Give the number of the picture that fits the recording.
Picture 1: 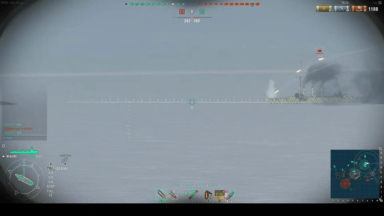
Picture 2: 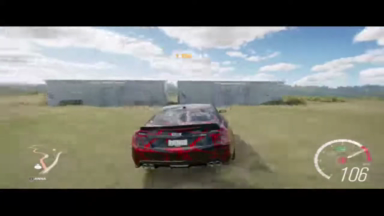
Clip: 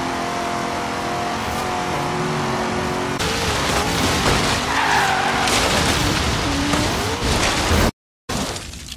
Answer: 2